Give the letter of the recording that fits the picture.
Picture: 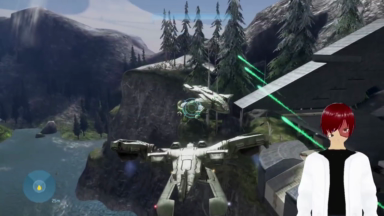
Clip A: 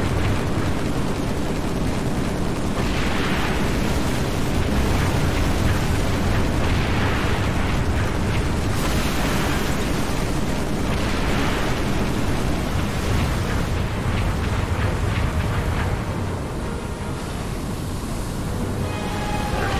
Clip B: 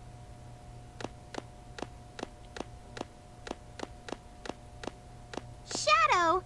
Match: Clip A